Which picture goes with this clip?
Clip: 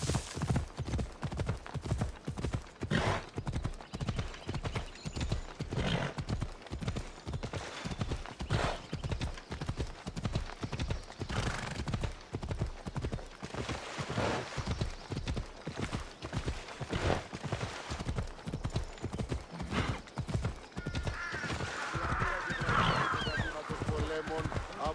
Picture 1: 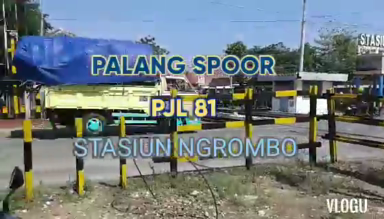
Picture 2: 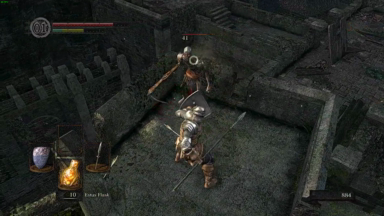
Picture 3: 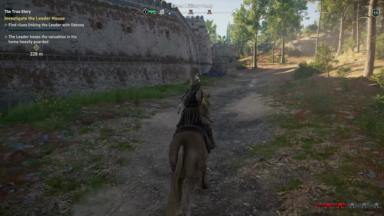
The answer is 3